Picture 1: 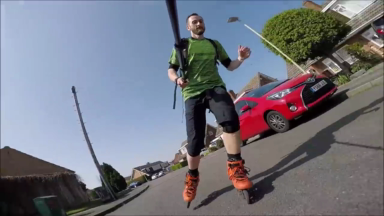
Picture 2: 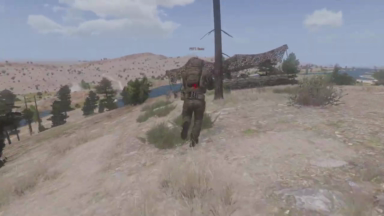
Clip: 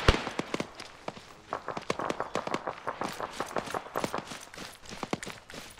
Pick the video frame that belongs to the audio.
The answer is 2